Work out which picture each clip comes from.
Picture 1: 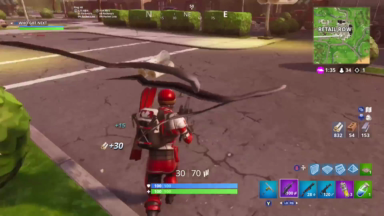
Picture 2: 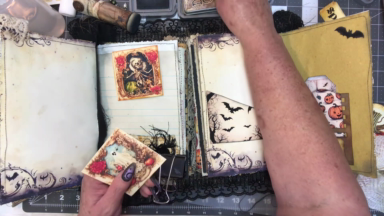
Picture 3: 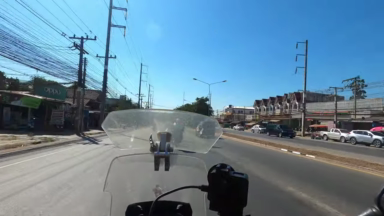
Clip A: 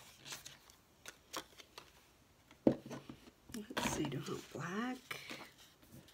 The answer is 2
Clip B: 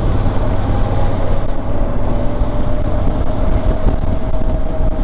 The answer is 3